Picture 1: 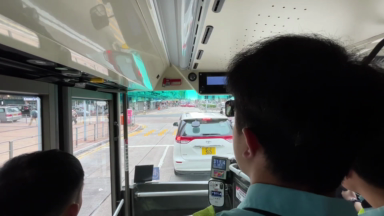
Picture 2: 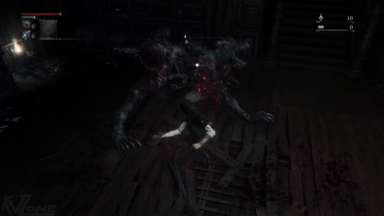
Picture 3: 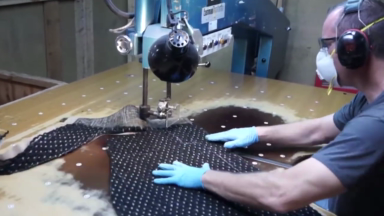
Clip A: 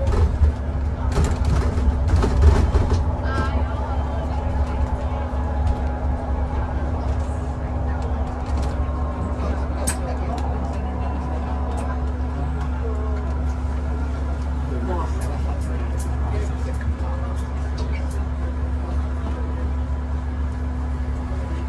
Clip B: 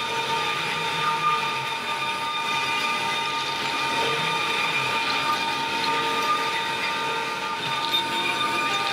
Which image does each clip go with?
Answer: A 1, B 3